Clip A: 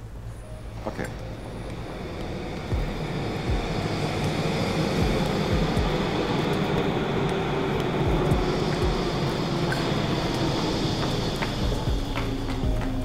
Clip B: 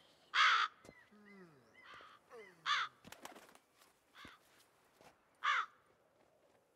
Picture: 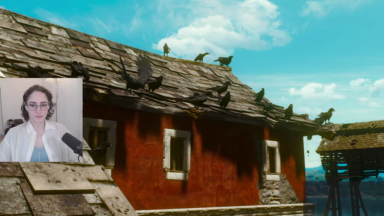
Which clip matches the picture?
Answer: B